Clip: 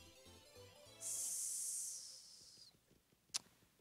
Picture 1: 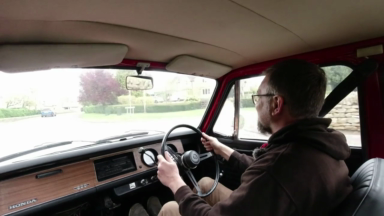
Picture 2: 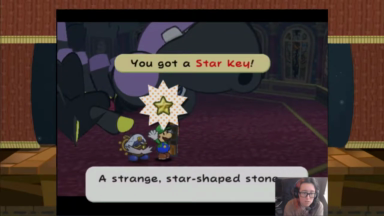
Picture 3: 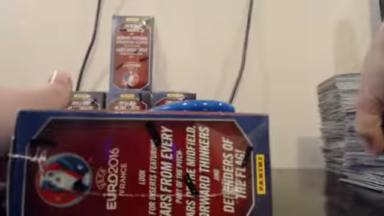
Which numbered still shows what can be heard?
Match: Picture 2